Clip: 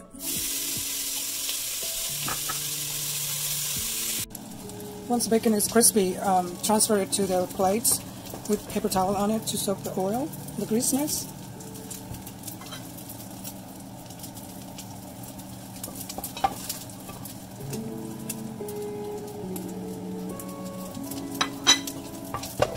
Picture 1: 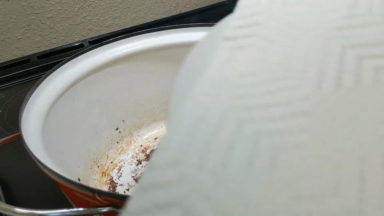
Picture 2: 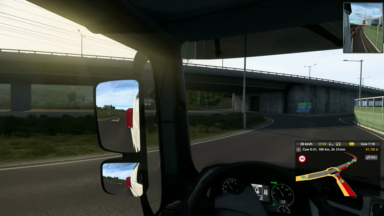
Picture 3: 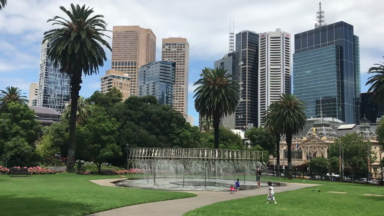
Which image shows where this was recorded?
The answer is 1